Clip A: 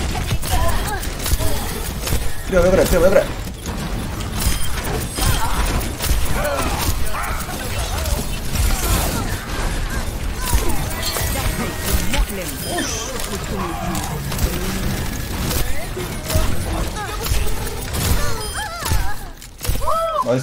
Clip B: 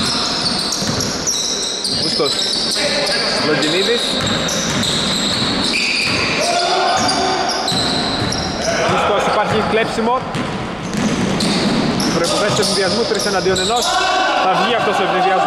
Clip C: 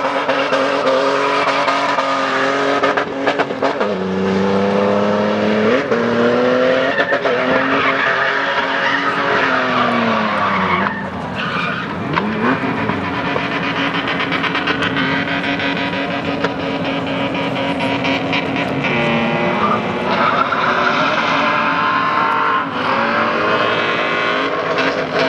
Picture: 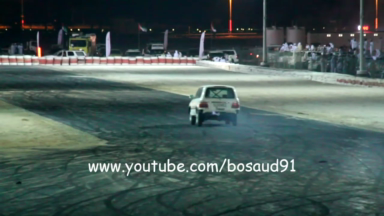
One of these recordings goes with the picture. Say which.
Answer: C